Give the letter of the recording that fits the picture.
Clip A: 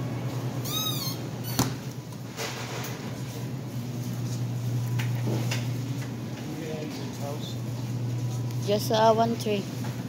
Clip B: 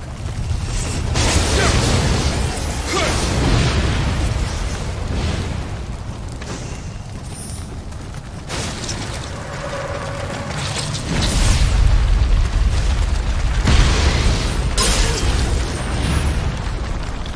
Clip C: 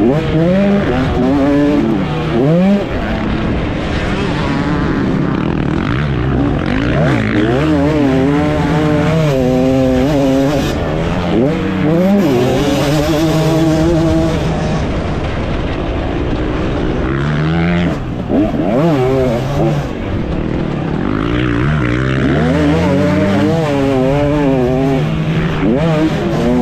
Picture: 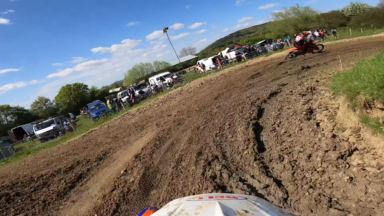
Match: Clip C